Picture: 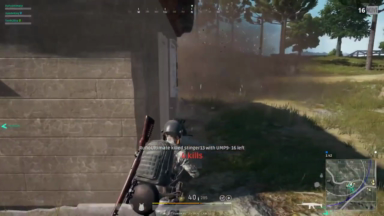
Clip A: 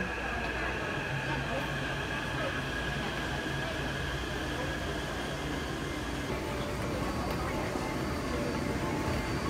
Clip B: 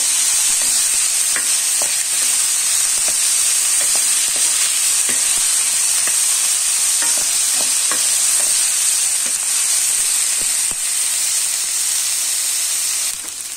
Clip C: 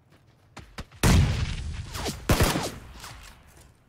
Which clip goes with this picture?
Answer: C